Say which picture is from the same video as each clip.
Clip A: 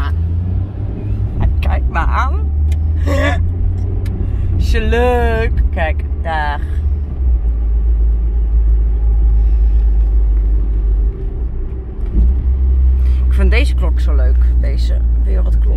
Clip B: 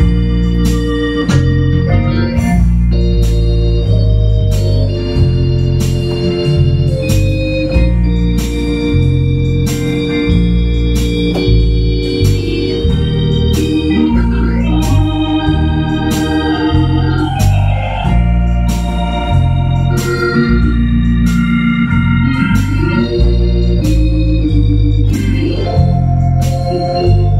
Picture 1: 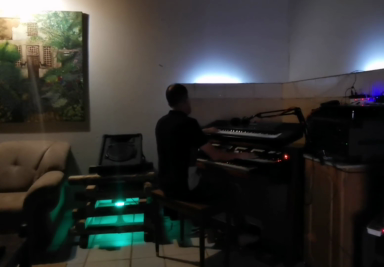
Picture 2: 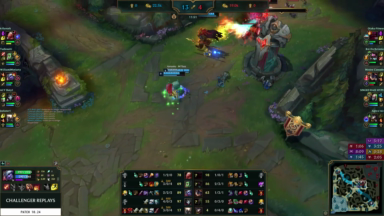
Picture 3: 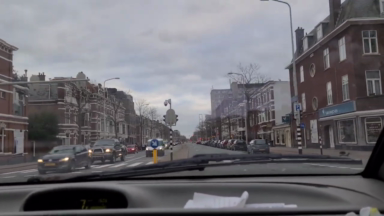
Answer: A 3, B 1